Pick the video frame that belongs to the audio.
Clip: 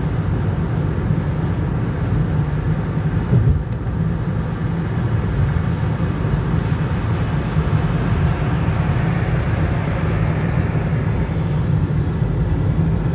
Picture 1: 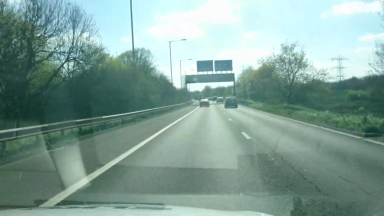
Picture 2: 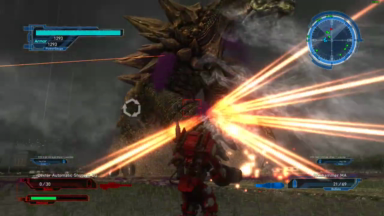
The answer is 1